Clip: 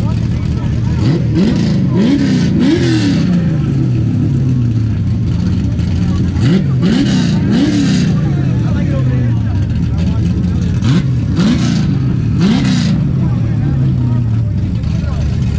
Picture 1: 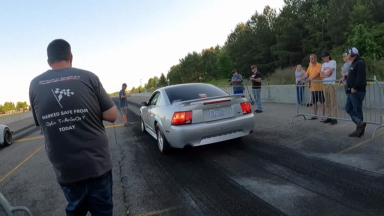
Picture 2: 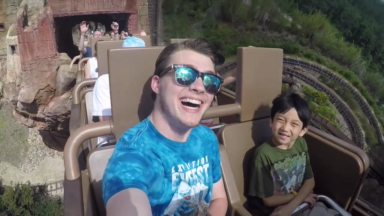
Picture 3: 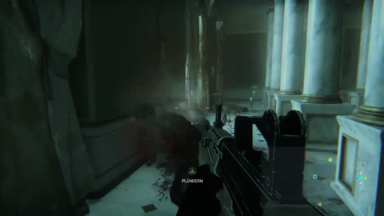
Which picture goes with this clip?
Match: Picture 1